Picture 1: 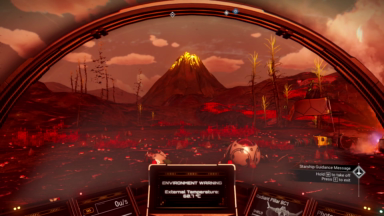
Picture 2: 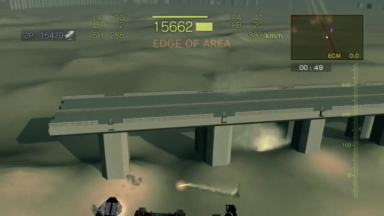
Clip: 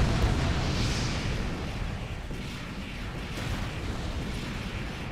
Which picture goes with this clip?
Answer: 2